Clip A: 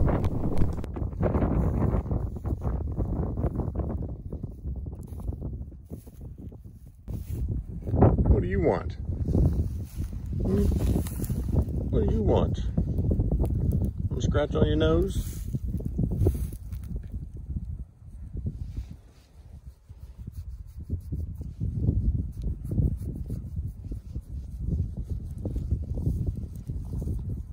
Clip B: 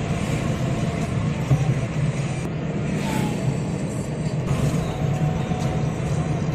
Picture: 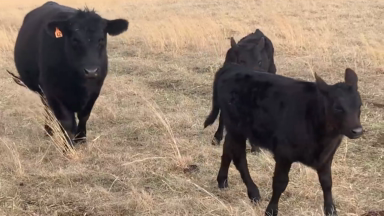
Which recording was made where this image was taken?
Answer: A